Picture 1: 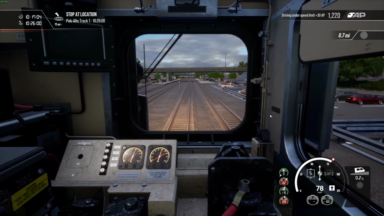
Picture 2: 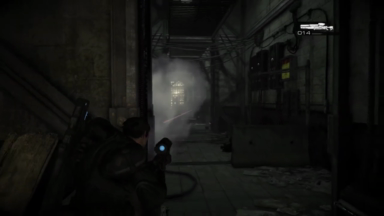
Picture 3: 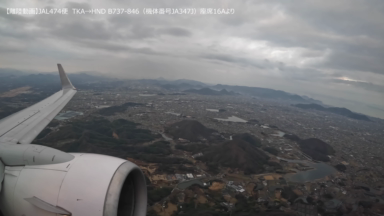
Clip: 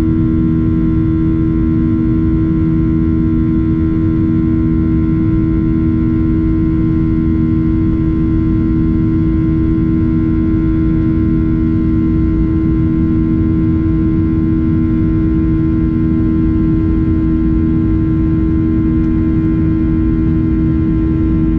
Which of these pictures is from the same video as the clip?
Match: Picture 3